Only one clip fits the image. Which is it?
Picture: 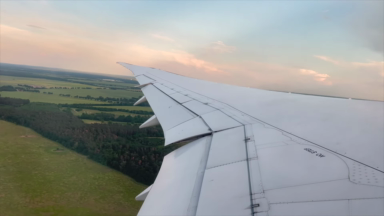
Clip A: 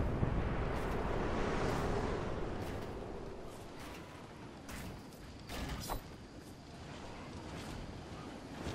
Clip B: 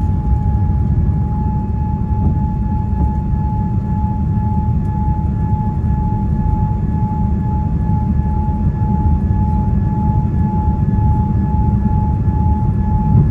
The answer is B